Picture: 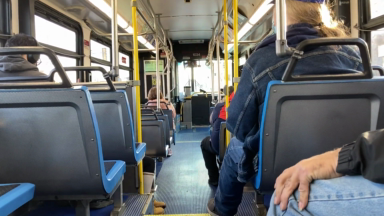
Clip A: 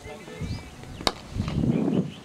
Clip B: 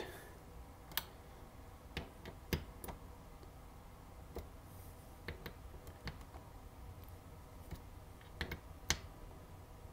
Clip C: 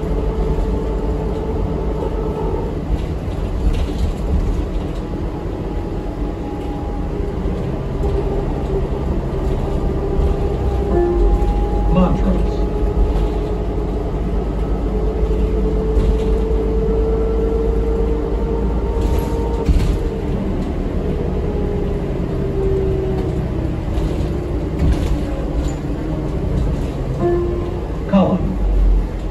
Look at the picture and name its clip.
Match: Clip C